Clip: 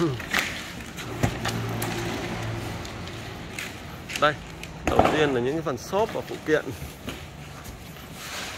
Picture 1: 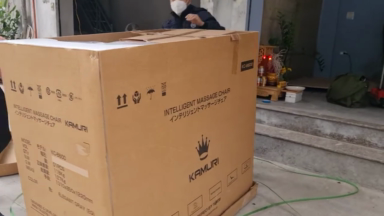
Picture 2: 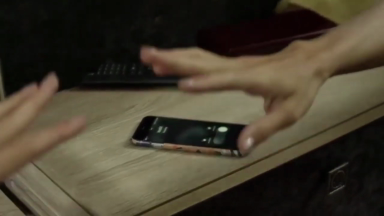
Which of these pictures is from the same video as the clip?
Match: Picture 1